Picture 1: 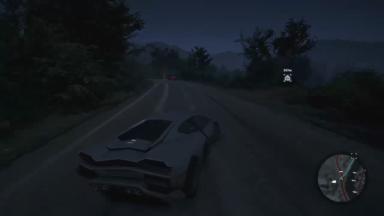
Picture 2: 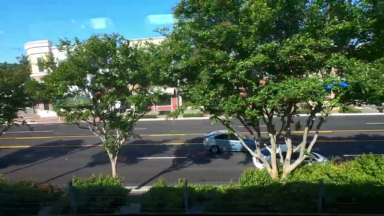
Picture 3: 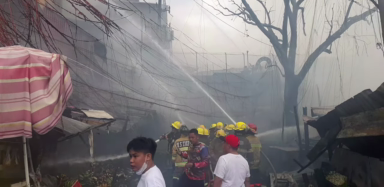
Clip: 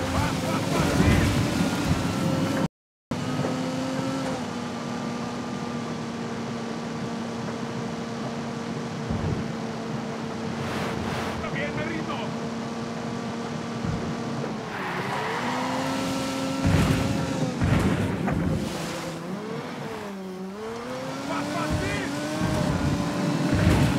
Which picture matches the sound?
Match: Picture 1